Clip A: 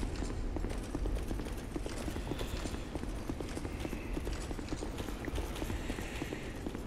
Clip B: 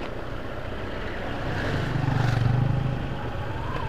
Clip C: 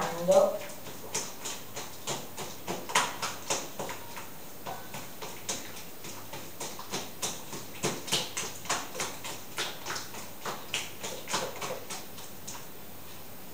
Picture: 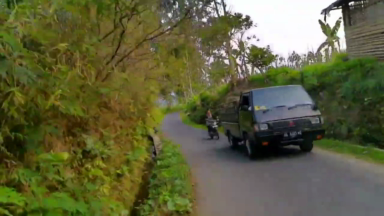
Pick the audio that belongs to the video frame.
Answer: B